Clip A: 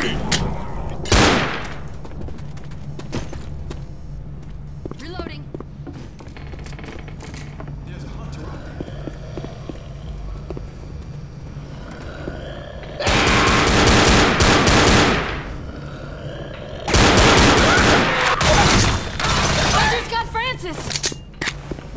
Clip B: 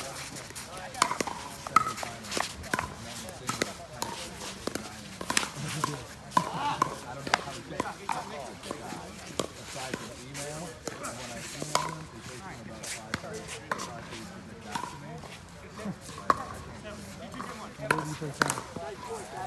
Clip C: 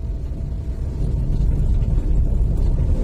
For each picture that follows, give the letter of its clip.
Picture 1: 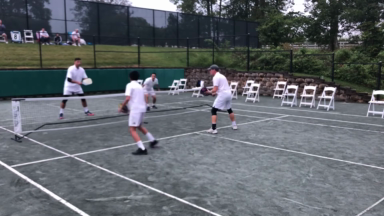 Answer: B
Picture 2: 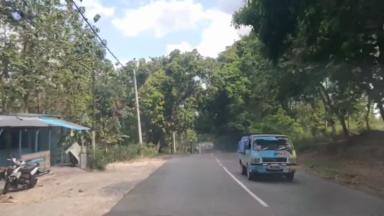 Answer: C